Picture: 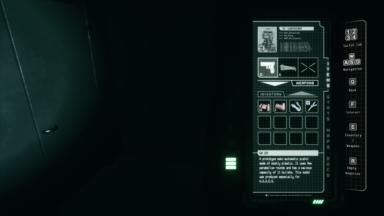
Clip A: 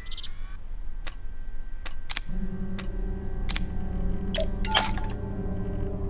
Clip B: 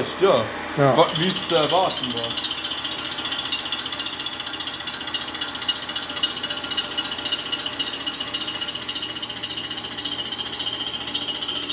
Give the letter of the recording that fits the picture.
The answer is A